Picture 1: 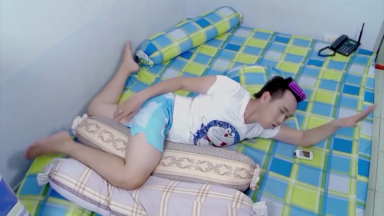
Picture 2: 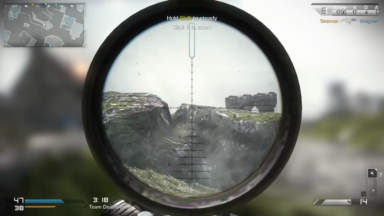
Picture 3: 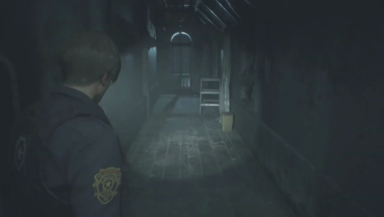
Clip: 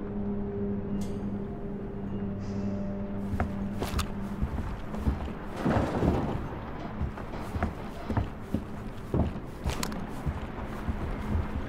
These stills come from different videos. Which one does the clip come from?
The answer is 3